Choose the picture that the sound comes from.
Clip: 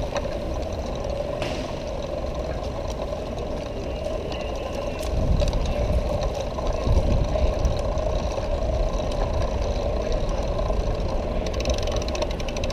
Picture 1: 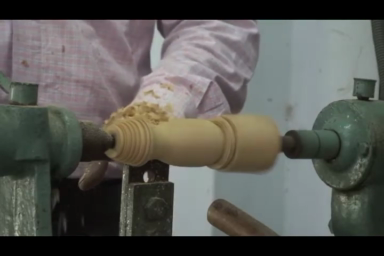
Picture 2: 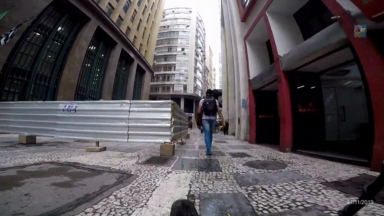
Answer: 2